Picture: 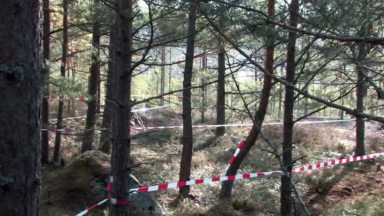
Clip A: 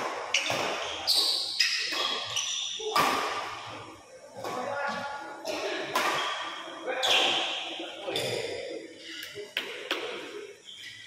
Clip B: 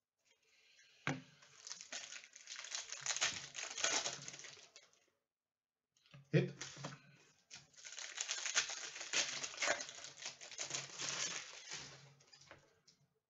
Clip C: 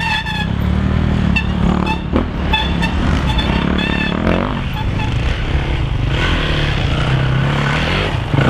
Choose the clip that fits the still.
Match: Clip C